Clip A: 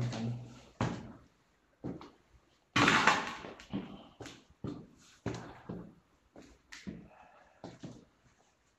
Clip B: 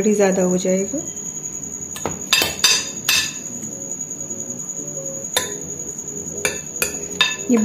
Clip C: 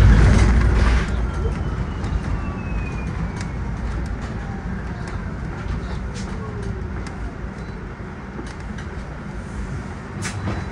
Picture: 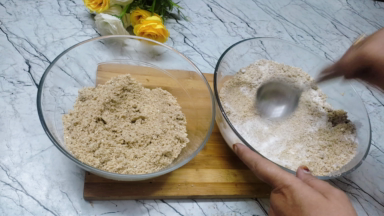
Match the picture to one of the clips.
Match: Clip B